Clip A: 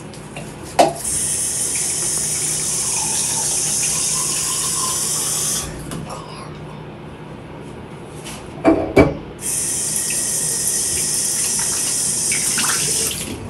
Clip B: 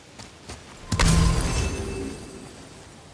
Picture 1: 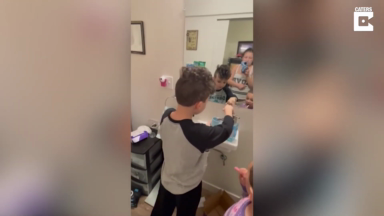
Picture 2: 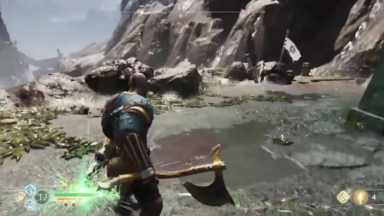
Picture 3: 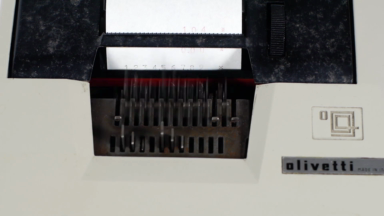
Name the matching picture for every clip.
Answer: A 1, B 2